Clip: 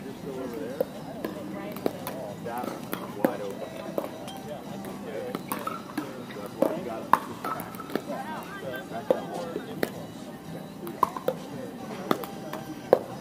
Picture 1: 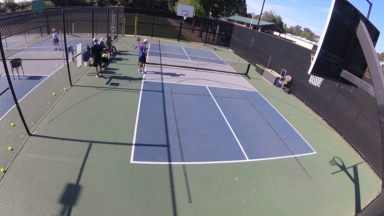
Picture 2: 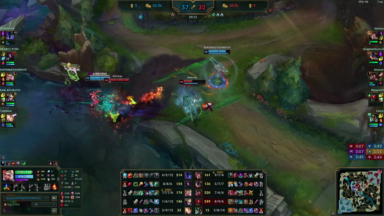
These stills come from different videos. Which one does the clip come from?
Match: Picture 1